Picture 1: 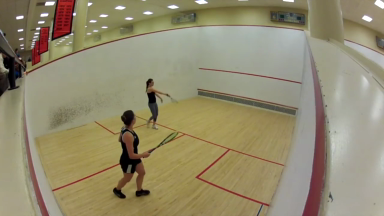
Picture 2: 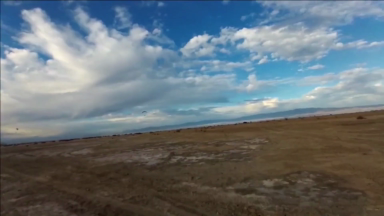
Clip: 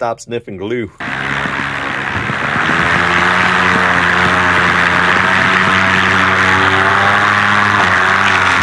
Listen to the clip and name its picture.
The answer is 2